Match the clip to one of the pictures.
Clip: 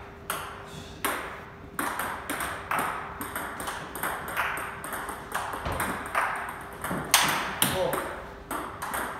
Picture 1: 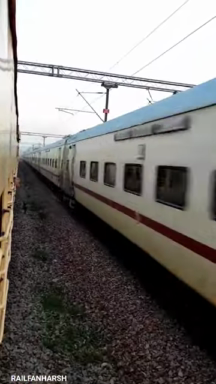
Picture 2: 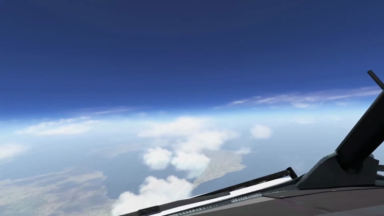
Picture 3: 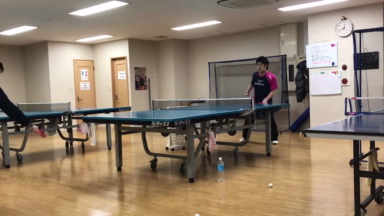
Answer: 3